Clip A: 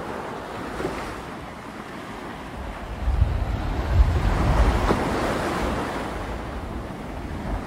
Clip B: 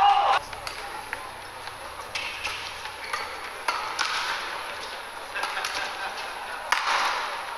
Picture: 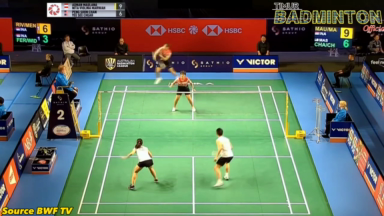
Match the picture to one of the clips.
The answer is B